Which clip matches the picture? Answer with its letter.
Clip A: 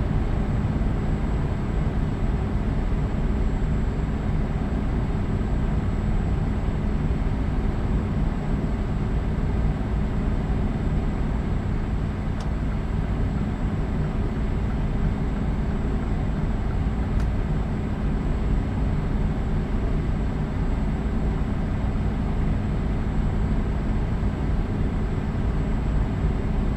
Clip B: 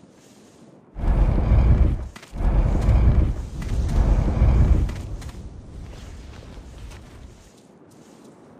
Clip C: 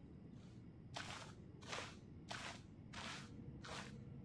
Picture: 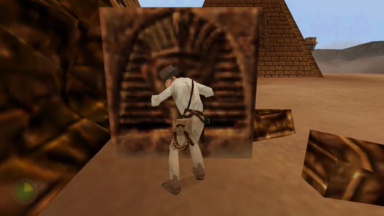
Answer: B